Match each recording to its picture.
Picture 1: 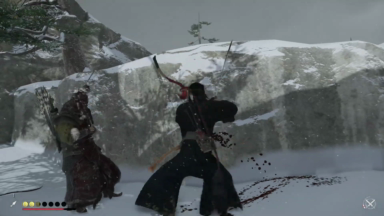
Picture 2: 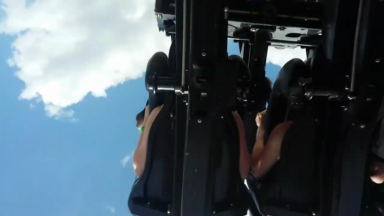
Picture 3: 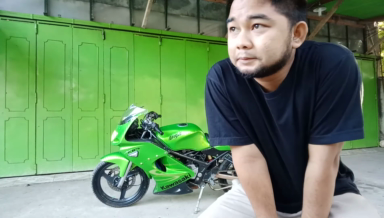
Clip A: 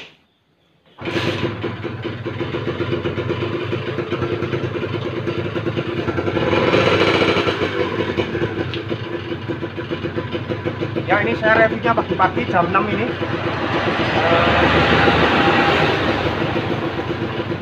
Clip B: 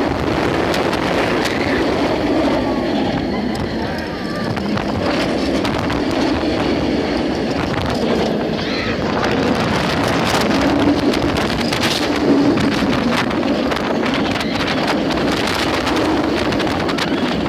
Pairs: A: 3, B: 2